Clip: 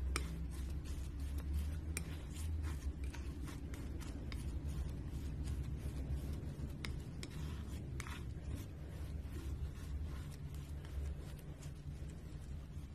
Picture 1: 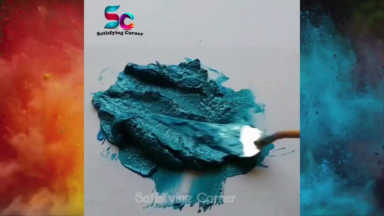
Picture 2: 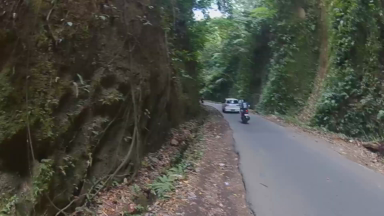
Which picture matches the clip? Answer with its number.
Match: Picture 1